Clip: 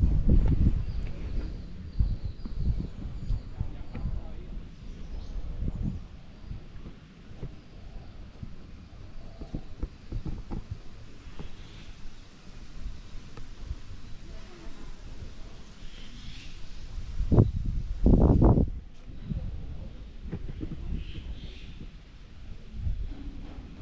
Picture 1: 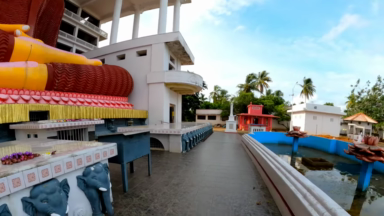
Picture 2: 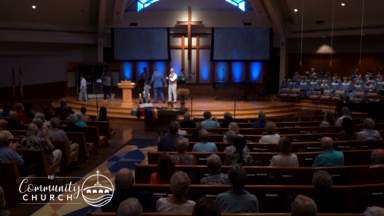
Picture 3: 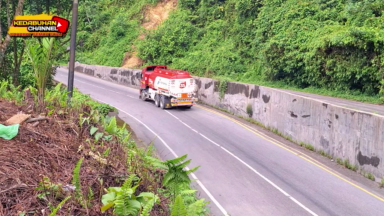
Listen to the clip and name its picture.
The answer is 1